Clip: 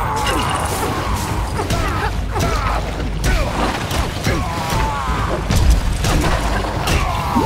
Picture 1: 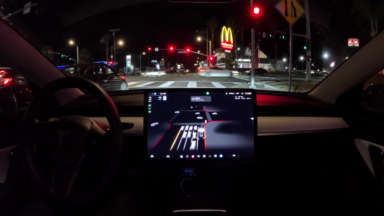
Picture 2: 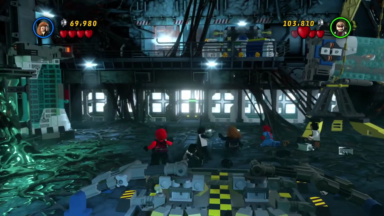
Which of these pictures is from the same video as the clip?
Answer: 2